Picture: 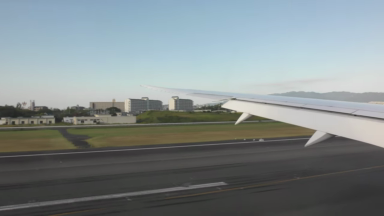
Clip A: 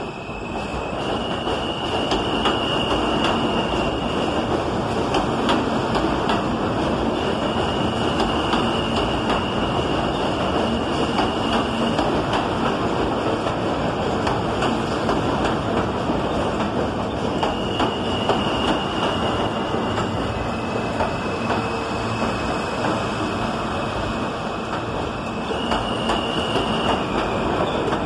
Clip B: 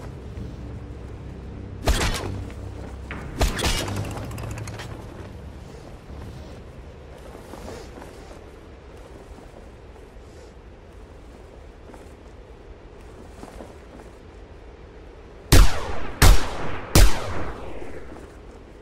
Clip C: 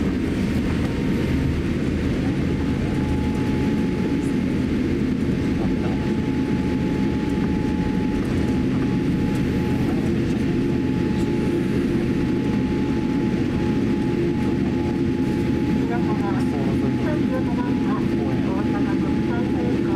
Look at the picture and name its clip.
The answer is C